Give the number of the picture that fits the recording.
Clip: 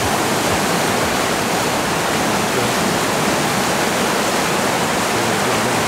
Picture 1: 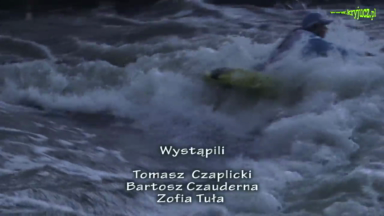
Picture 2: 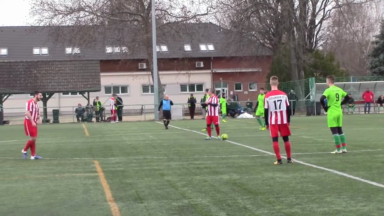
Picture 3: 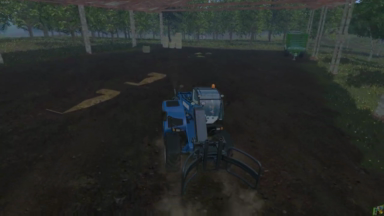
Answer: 1